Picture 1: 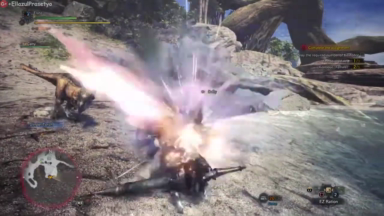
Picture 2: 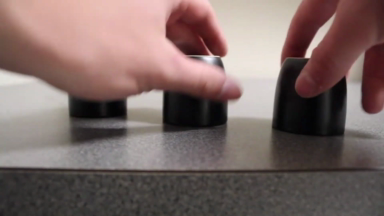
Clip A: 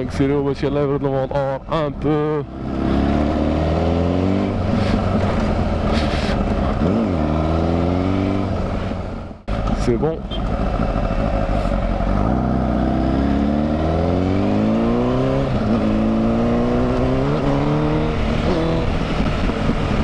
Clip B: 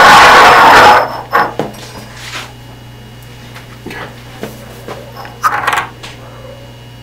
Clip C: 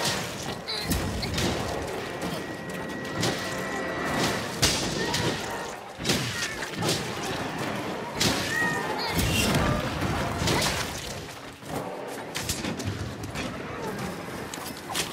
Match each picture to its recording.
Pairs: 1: C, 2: B